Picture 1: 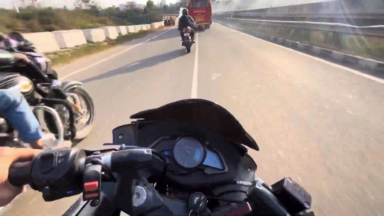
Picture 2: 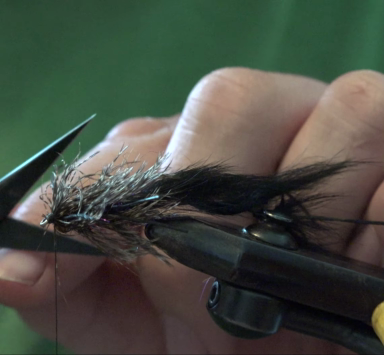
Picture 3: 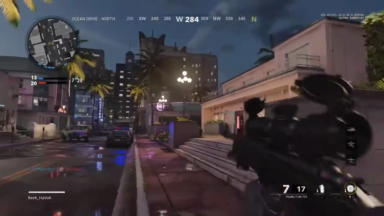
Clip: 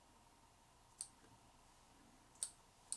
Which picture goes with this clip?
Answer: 2